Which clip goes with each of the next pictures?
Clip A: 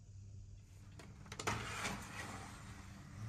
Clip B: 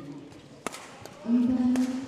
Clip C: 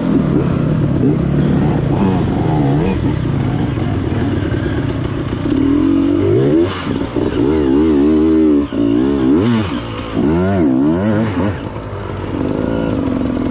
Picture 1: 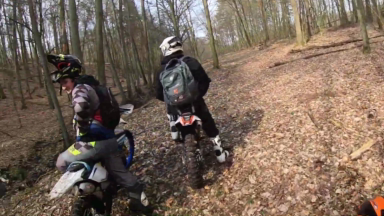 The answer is C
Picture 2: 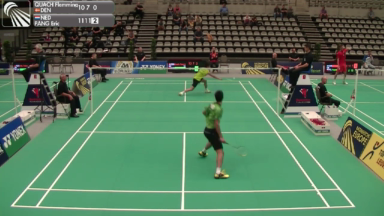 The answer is B